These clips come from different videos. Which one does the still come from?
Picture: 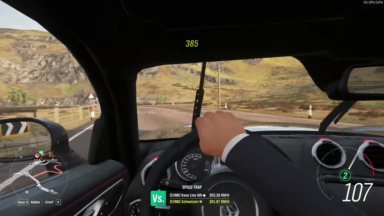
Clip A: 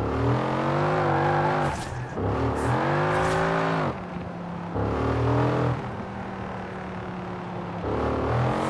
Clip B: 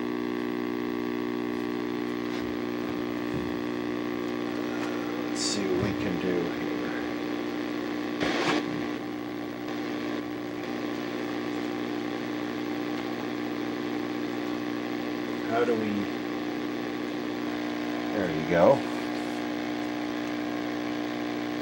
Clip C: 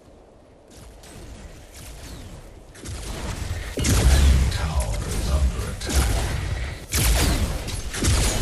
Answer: A